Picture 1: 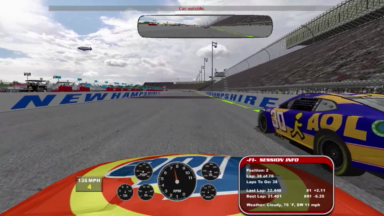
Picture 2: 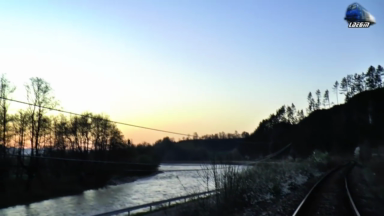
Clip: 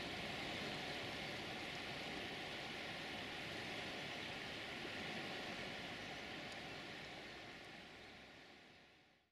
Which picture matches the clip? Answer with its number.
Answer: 2